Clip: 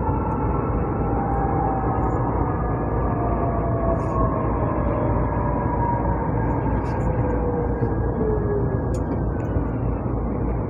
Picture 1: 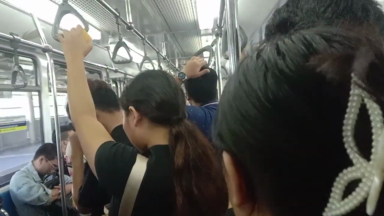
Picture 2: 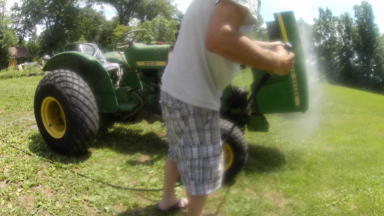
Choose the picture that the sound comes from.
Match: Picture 1